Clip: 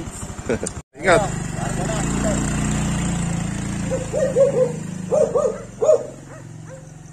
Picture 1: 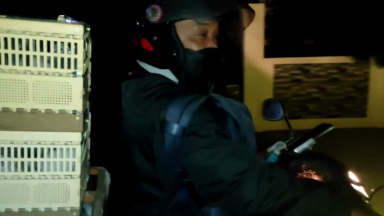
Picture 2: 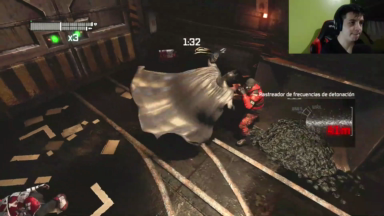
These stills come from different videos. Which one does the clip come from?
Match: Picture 1